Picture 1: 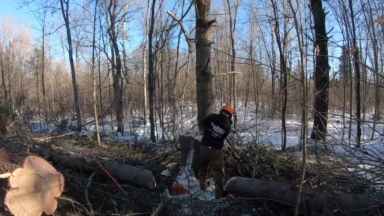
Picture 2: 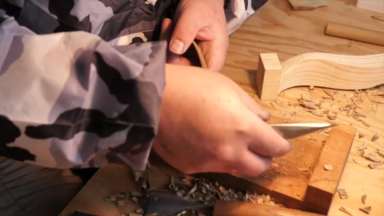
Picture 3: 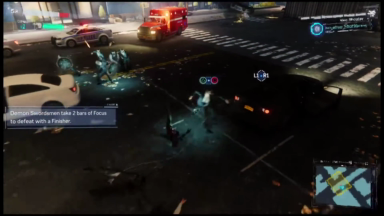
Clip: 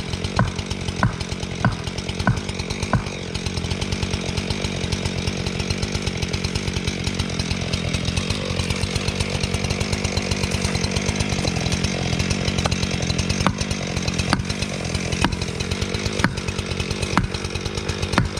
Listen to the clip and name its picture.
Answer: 1